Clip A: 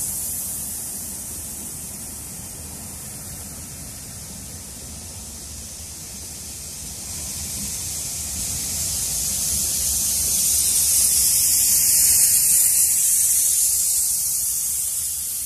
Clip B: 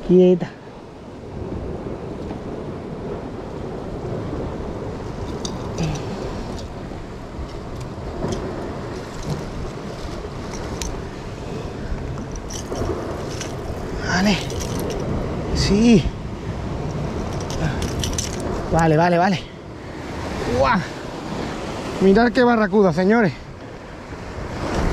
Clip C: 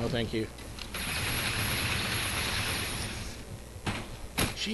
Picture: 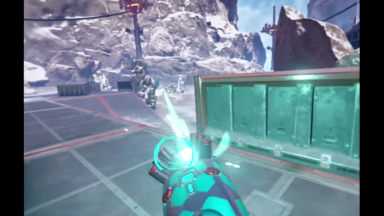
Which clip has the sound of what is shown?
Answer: C